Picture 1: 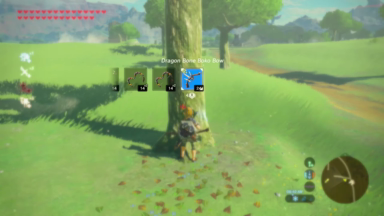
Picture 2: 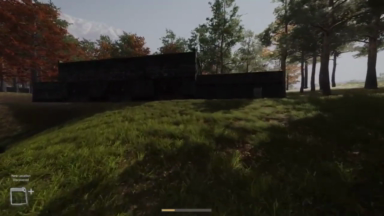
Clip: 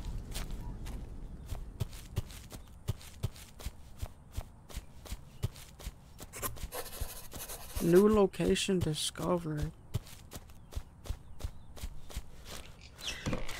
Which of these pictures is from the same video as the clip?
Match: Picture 2